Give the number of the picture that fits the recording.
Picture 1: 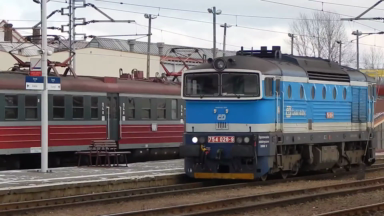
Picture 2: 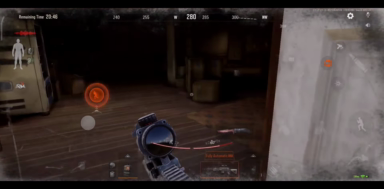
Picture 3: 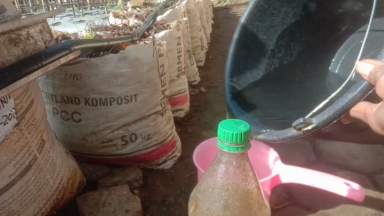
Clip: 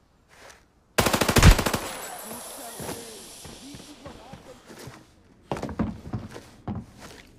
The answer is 2